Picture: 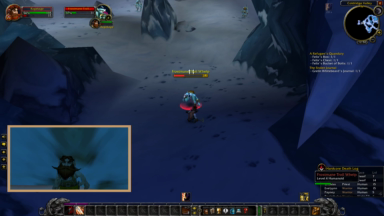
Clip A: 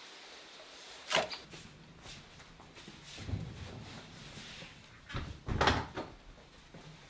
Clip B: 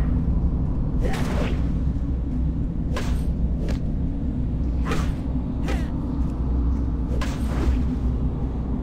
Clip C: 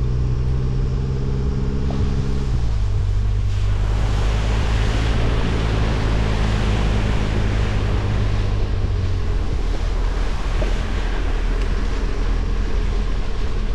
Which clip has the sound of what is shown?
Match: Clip B